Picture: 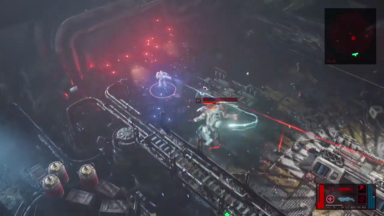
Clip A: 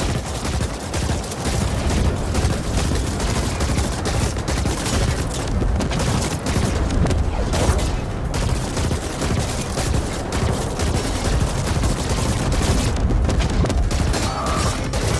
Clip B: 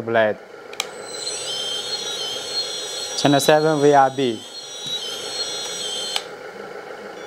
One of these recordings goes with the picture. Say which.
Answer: A